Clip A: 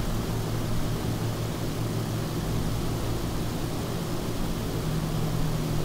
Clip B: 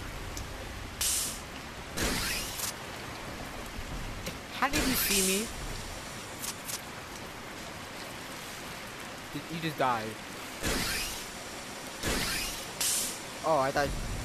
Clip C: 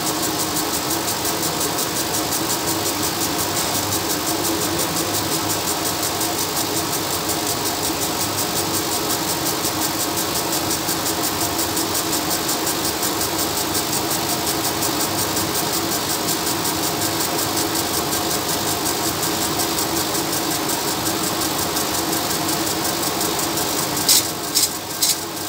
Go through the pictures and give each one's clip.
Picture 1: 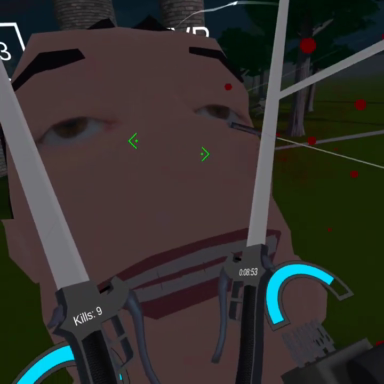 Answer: B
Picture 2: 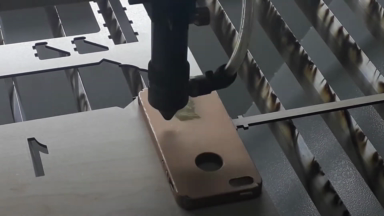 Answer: C